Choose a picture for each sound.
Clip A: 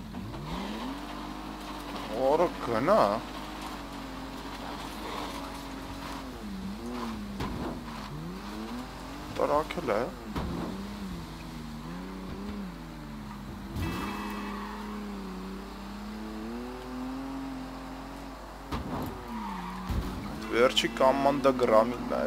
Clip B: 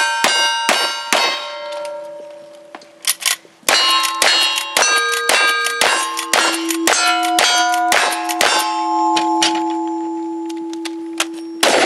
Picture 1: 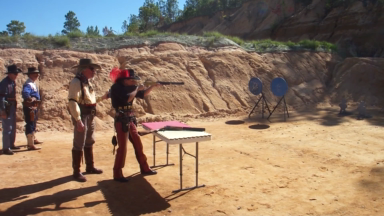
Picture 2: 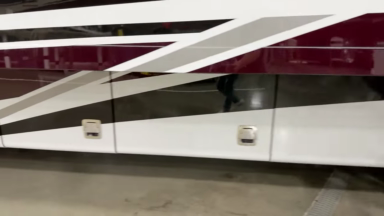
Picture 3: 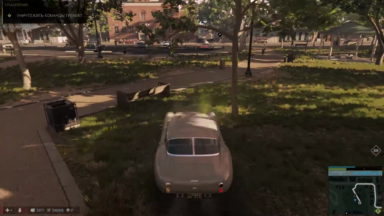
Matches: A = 3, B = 1